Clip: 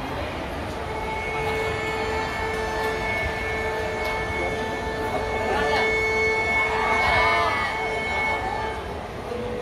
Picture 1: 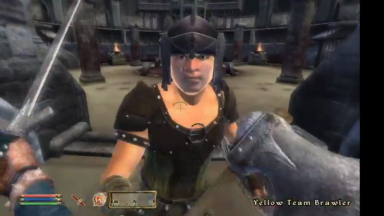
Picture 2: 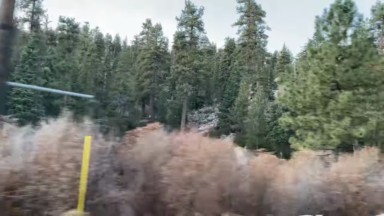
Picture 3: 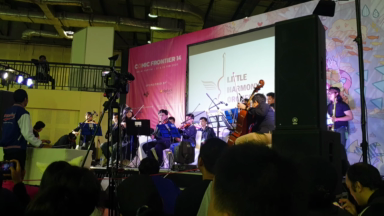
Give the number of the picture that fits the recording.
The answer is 3